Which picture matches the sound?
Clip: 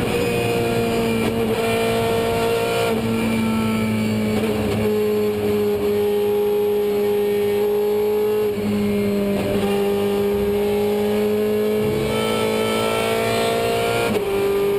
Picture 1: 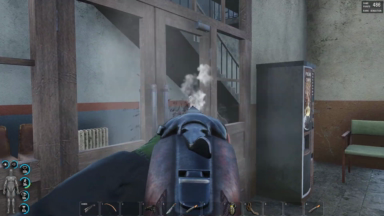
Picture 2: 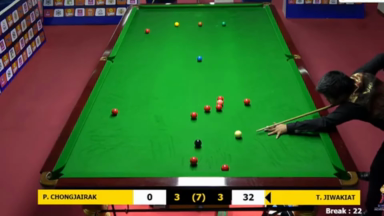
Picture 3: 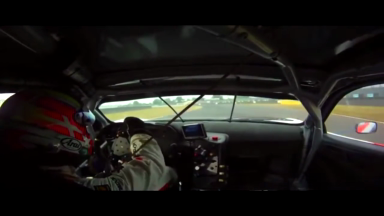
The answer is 3